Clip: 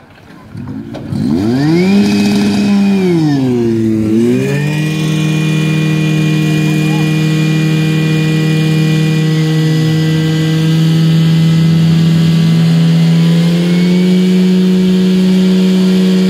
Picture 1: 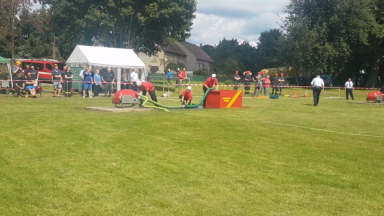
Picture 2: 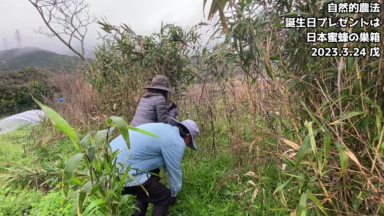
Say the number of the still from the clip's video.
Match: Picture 1